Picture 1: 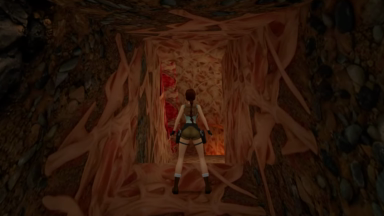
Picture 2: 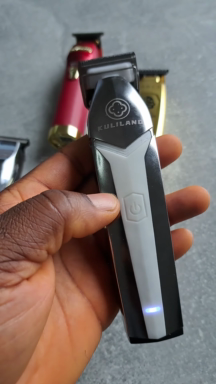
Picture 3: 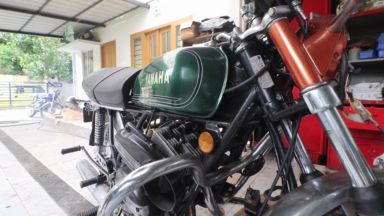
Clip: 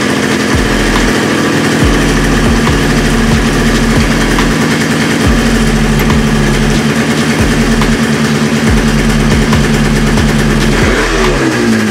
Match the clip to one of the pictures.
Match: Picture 3